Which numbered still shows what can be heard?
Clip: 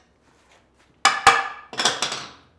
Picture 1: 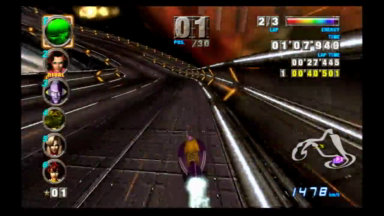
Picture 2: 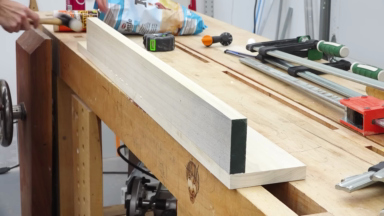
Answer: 2